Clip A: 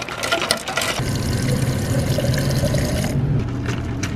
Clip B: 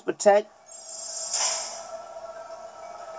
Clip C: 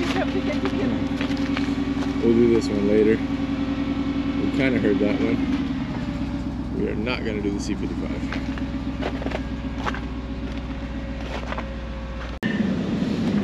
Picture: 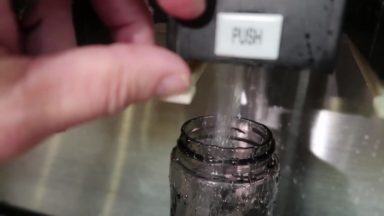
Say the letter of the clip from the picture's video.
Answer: A